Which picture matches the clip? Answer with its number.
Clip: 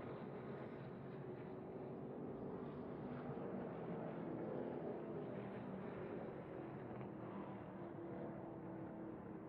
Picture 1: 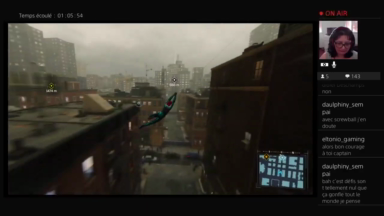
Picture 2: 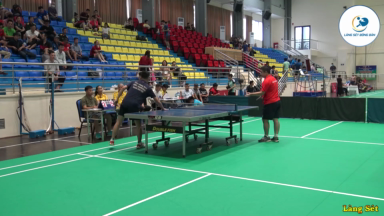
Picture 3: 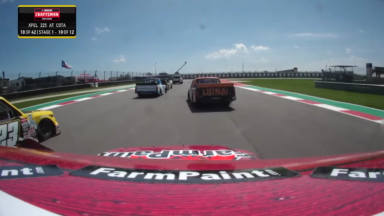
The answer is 3